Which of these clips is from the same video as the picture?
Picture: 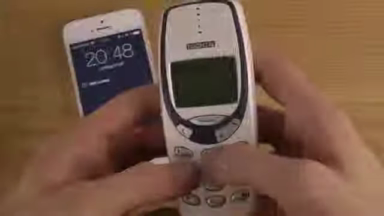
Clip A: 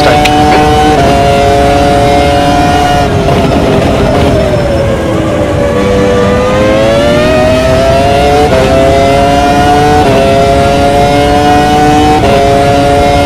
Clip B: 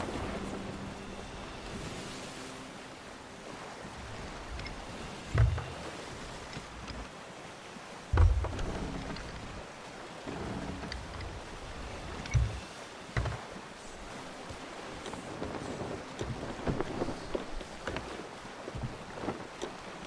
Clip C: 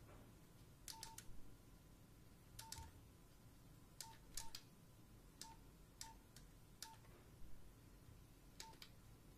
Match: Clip C